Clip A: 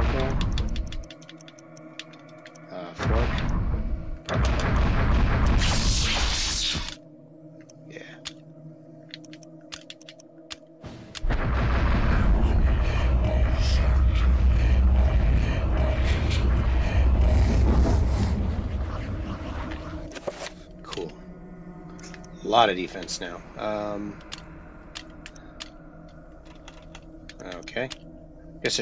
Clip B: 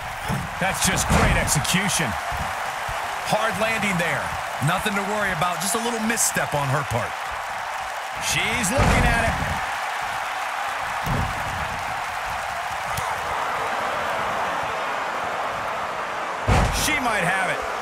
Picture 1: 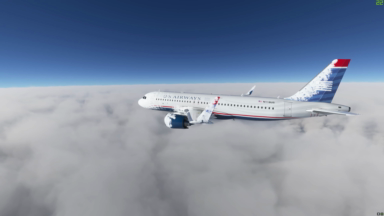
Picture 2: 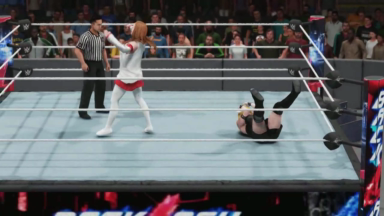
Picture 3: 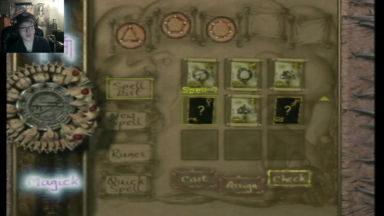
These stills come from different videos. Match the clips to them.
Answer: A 3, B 2